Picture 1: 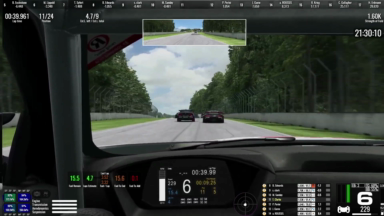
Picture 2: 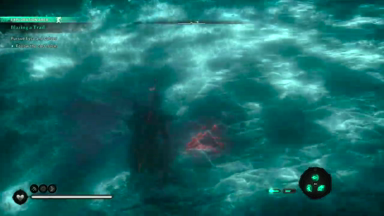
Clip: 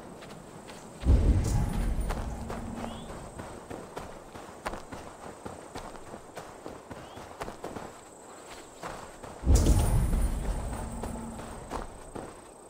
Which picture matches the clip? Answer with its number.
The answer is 2